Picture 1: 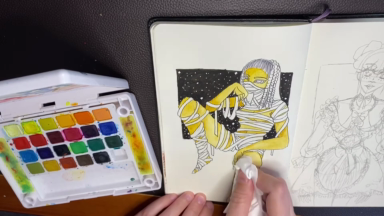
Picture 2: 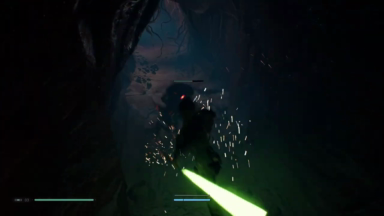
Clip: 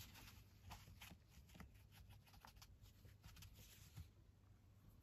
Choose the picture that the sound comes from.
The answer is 1